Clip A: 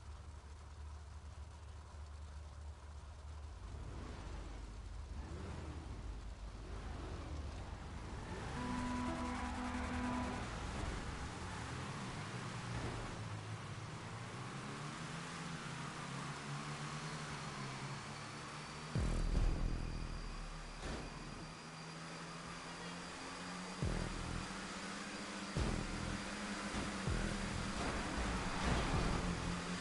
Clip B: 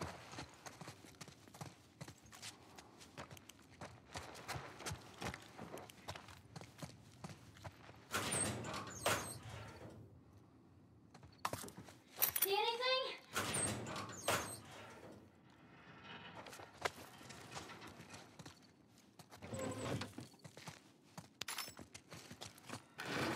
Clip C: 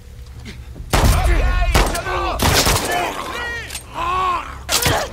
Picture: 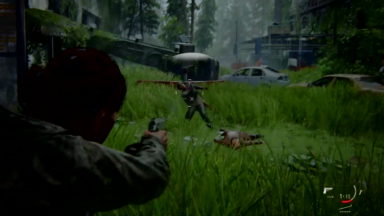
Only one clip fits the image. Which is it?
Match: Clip C